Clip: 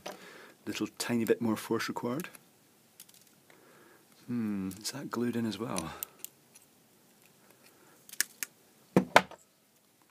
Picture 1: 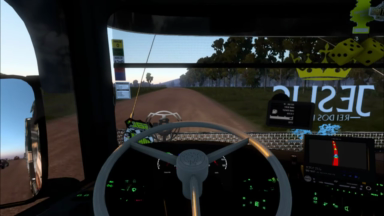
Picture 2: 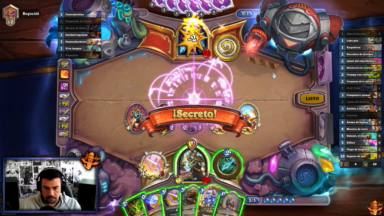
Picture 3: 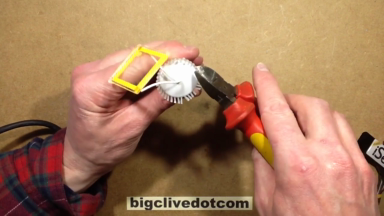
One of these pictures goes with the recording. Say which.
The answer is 3